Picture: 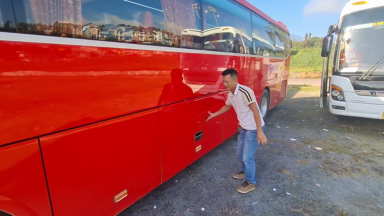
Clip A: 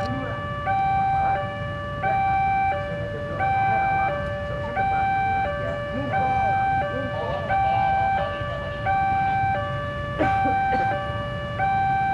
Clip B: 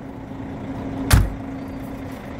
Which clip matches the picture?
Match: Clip B